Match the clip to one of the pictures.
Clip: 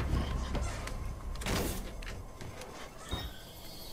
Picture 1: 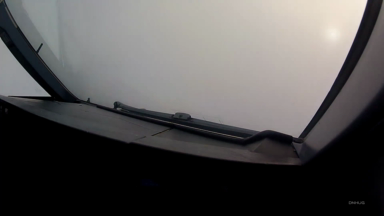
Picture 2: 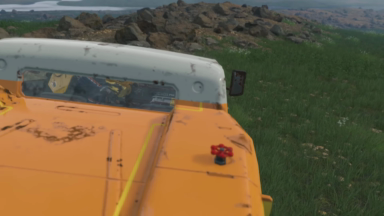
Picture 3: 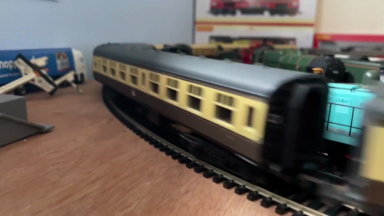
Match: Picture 2